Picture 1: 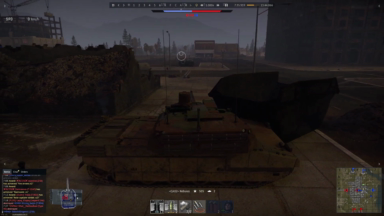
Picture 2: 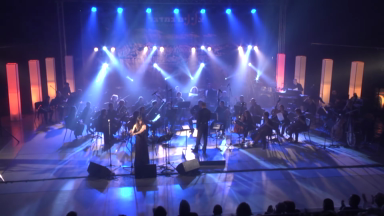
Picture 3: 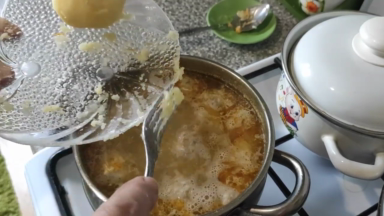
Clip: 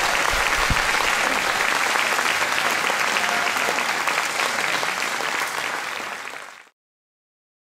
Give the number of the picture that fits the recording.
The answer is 2